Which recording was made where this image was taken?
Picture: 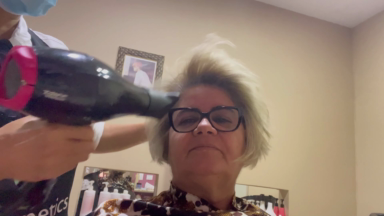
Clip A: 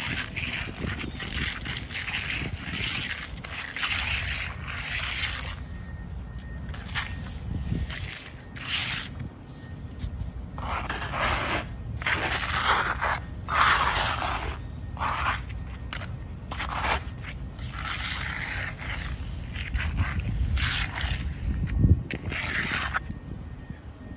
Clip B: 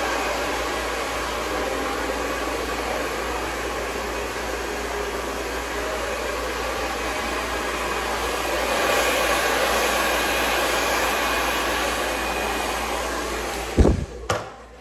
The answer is B